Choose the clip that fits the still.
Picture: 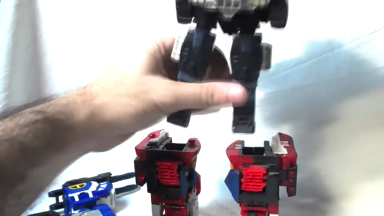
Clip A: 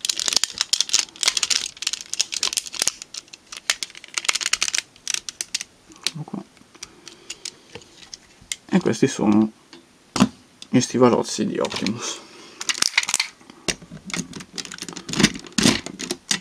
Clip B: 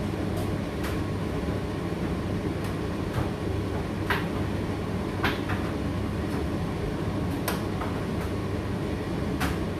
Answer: A